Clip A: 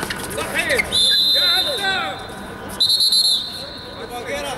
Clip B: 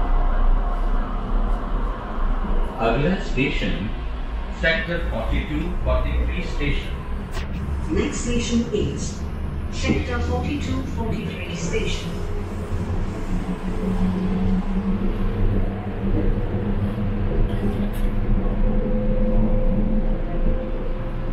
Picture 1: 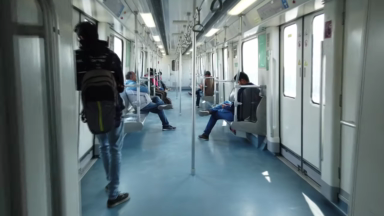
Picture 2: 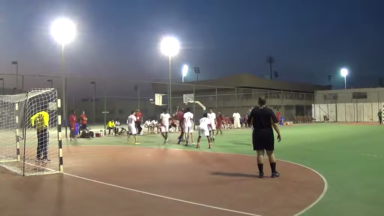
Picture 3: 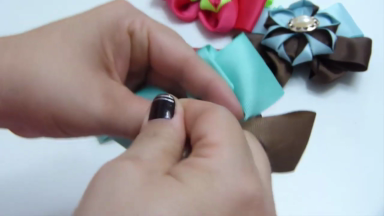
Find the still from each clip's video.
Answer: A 2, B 1